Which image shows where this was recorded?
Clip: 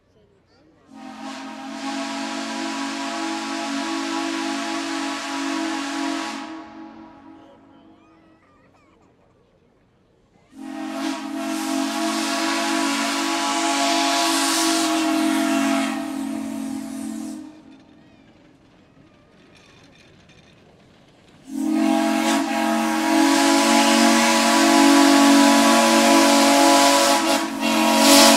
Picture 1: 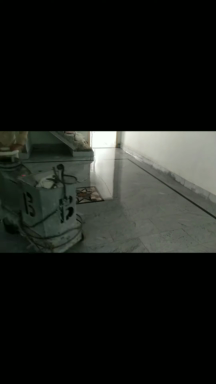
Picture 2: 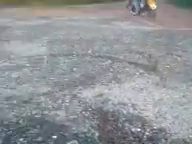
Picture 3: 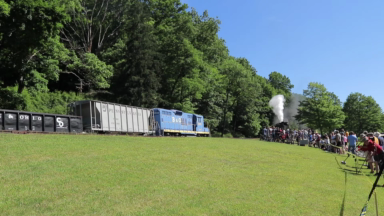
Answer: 3